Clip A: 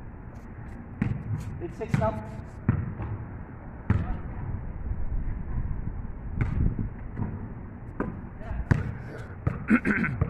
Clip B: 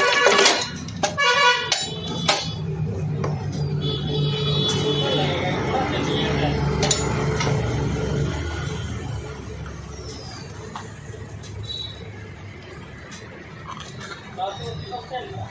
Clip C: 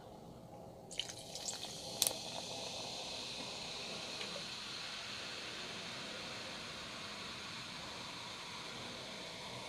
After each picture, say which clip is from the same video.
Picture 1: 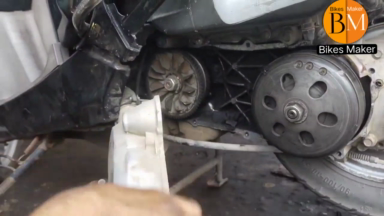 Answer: B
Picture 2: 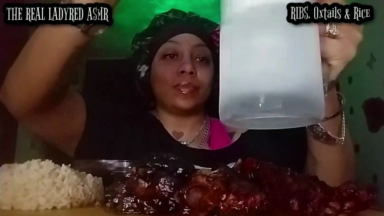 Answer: C